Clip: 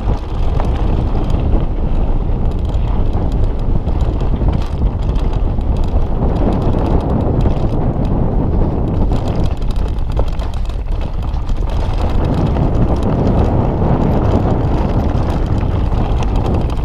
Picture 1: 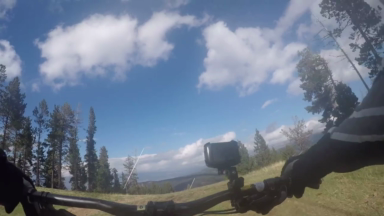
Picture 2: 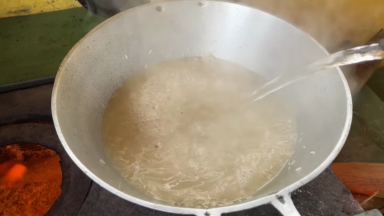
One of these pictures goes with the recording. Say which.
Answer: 1